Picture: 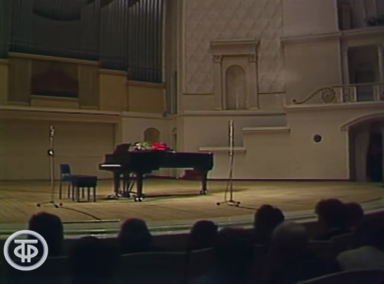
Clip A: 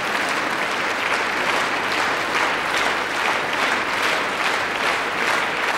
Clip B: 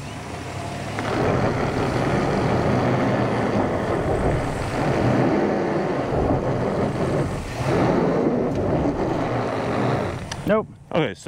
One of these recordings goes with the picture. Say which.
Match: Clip A